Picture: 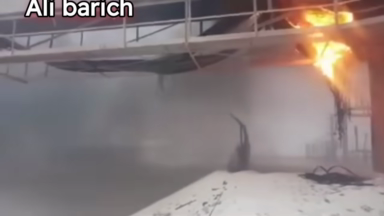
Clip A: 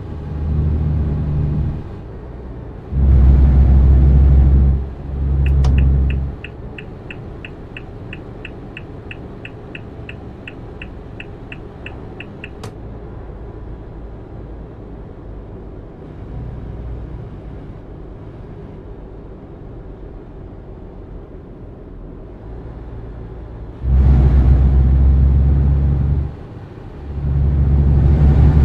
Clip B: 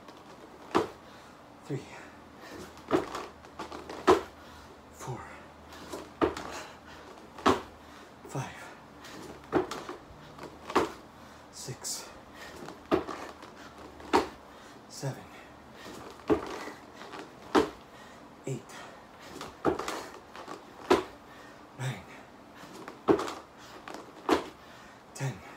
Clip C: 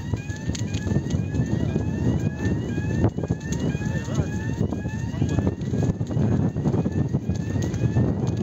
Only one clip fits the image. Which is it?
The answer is C